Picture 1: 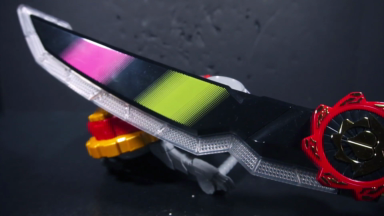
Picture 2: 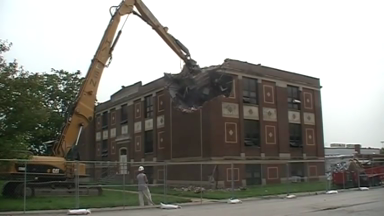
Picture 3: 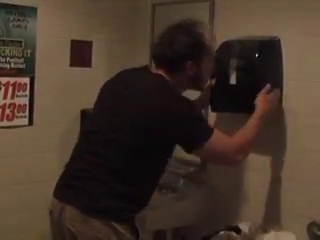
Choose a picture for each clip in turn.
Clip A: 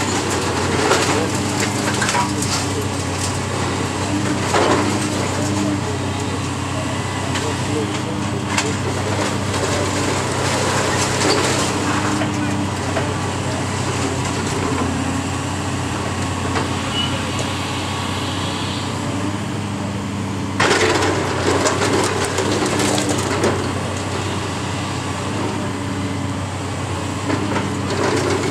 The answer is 2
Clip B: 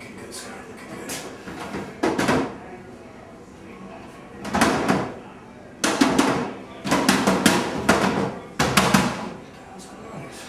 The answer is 3